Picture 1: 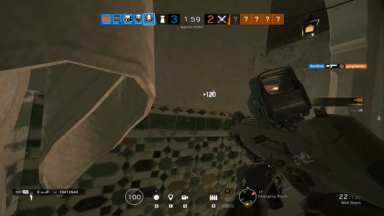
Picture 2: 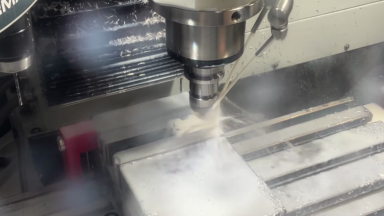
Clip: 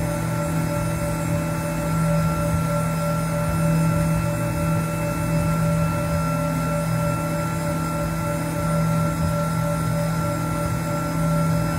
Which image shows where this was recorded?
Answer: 2